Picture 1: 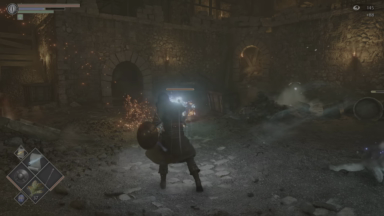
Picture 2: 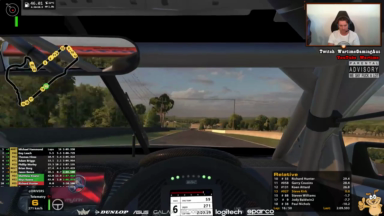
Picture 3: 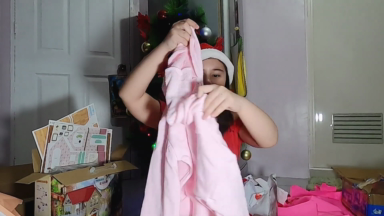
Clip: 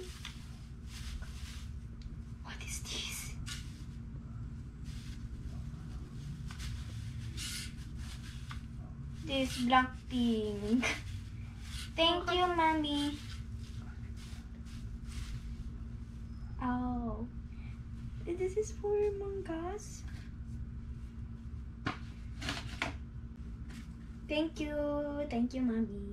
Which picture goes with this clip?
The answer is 3